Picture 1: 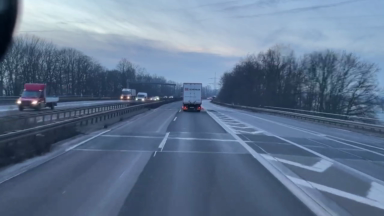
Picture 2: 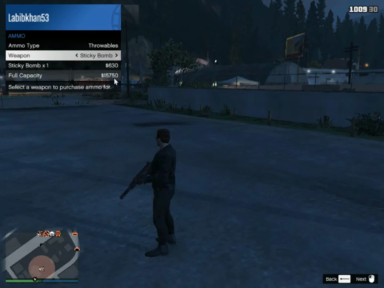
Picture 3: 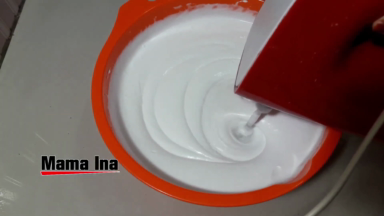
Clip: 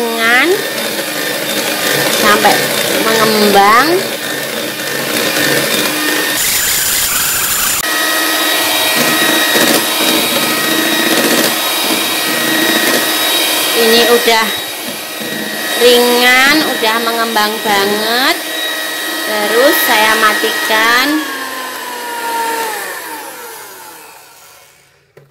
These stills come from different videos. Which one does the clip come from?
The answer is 3